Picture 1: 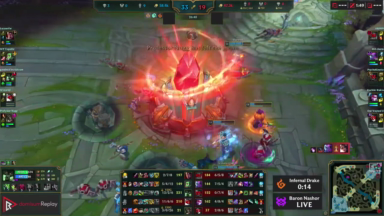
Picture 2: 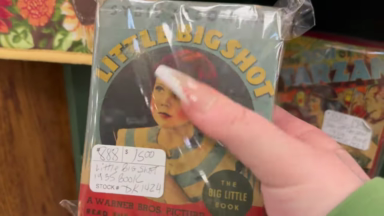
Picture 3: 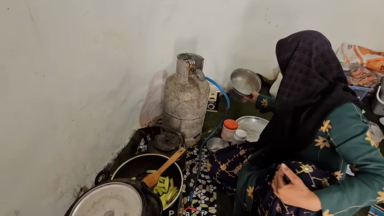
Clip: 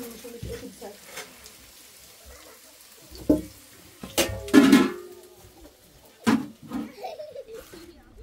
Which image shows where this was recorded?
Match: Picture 3